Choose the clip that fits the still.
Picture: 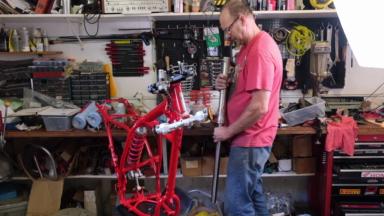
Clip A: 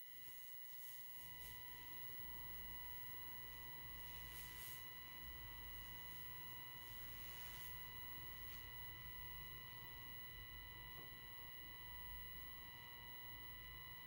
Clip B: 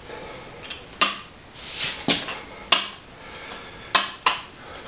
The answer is B